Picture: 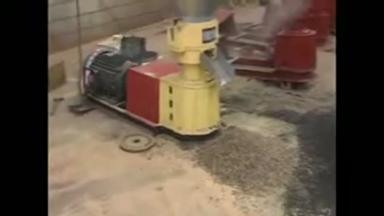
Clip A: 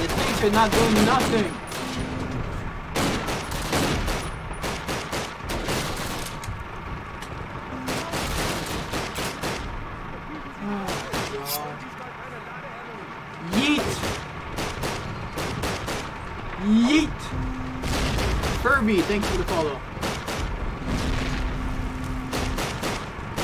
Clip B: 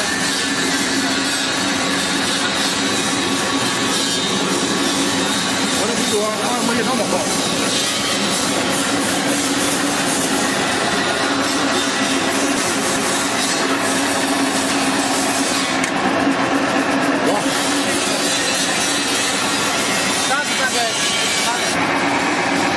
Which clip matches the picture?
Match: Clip B